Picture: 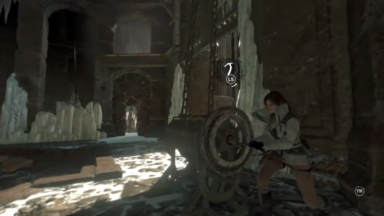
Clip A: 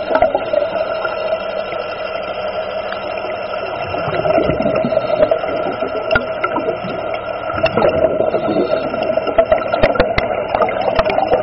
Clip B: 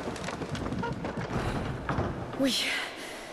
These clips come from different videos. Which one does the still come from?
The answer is B